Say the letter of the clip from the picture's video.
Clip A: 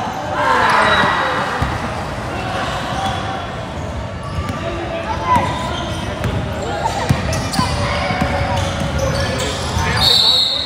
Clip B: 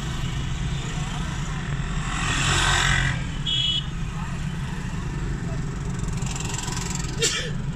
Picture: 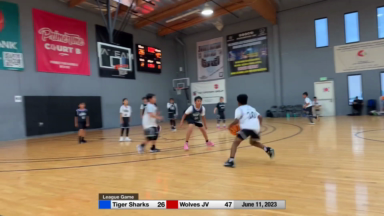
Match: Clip A